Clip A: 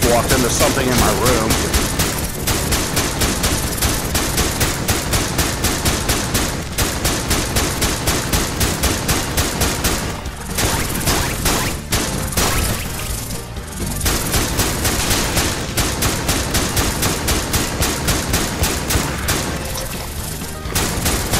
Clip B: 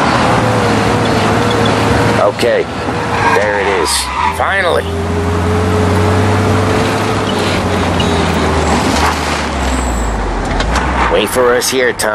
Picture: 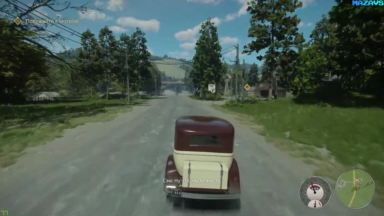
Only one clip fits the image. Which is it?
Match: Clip B